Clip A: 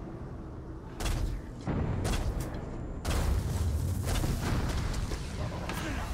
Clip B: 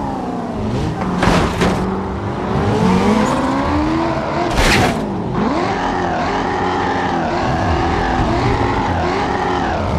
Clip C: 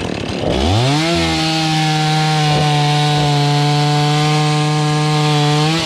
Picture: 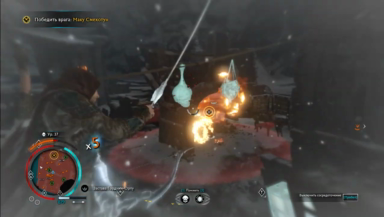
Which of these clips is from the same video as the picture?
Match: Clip A